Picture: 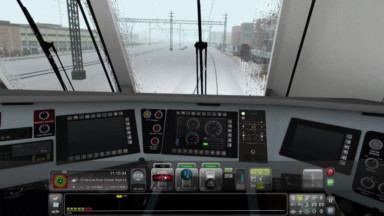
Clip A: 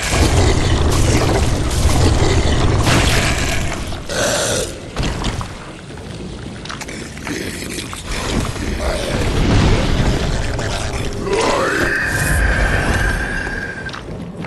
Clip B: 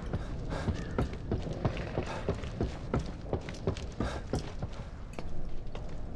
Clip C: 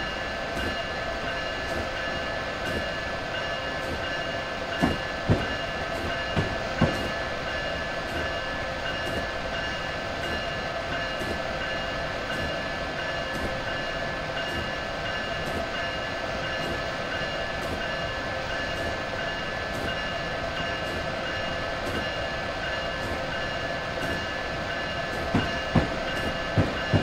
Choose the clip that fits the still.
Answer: C